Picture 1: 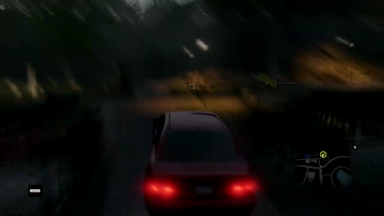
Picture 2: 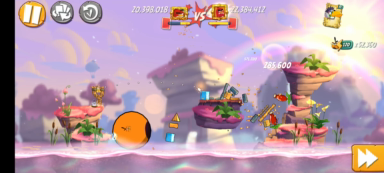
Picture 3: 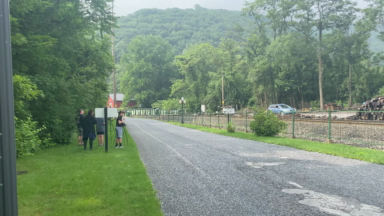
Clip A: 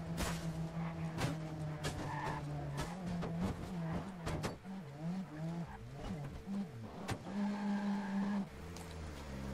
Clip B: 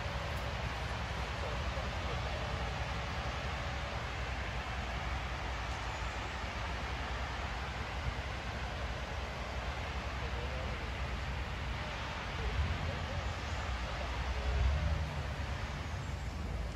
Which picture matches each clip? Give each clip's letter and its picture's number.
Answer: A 1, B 3